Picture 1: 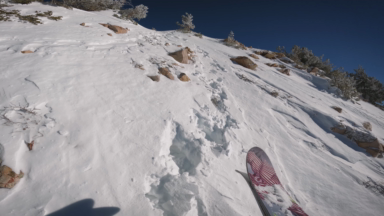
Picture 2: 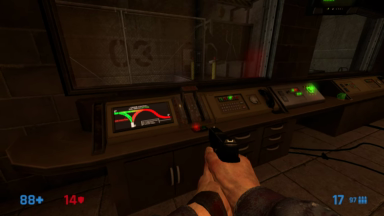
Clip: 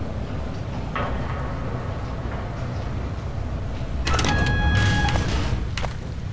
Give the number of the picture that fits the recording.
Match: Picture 2